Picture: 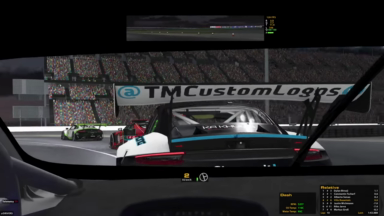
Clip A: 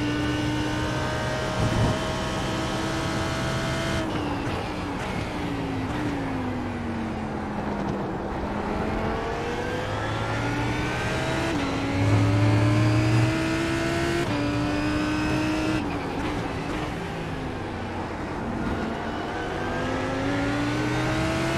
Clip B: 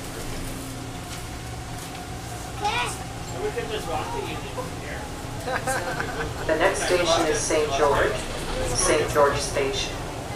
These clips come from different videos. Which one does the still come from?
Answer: A